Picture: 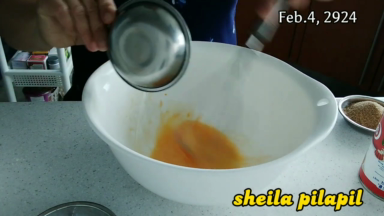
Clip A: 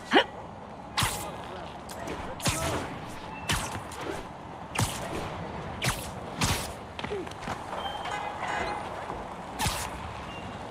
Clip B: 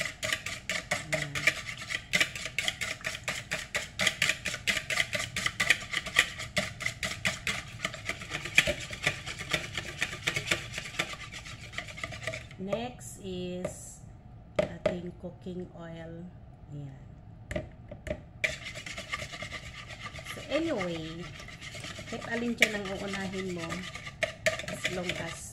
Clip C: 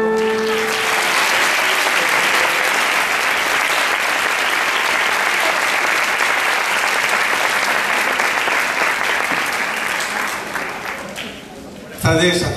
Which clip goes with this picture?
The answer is B